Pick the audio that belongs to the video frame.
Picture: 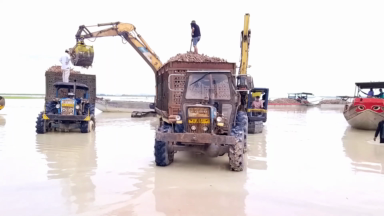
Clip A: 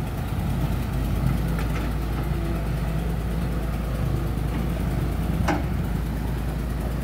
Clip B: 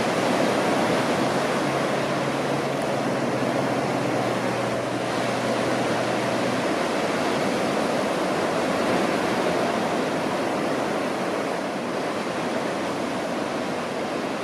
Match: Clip A